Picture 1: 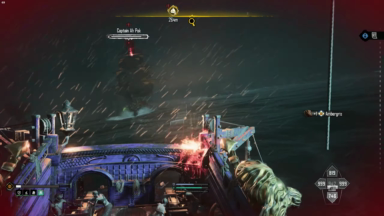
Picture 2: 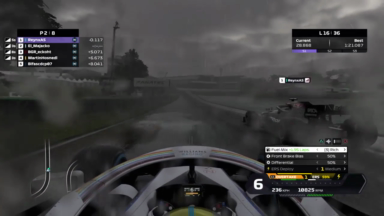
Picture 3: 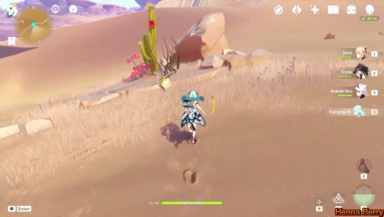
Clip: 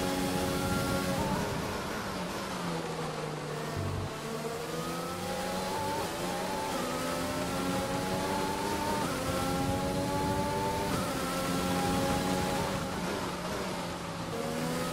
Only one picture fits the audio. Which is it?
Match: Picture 2